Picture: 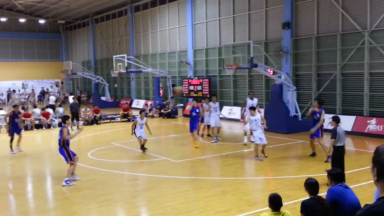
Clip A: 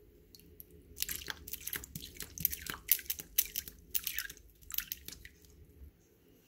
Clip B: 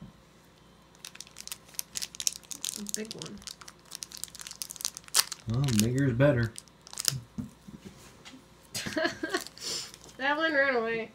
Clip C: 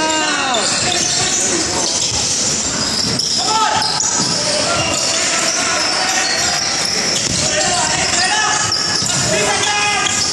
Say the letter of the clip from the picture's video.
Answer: C